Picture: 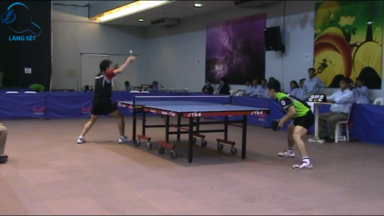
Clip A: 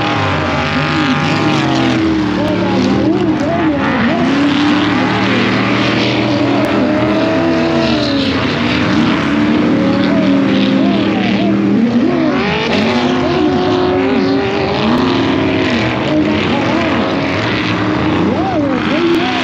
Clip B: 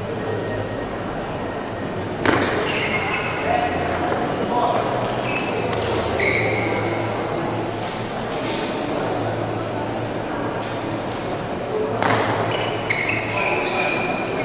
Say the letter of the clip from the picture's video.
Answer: B